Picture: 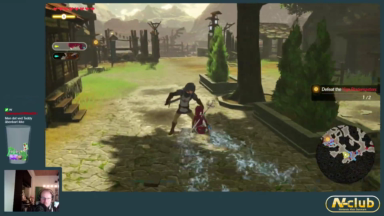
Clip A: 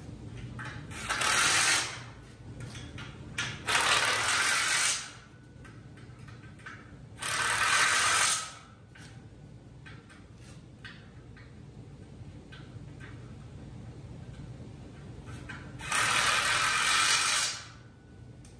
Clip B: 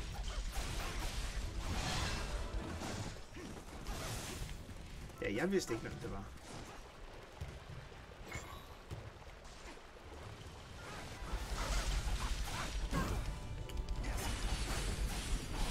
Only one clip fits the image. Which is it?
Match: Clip B